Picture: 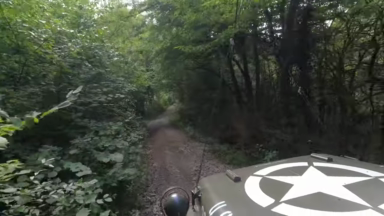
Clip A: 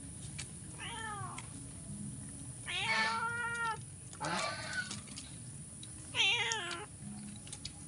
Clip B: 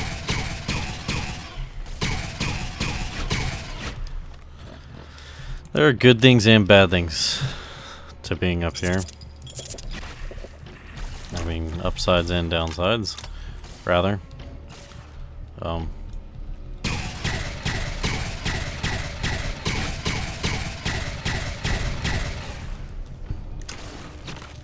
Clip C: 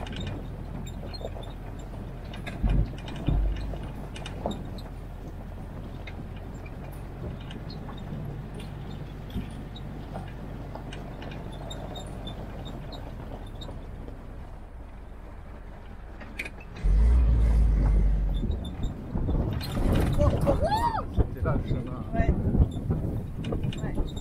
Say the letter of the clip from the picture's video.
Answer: C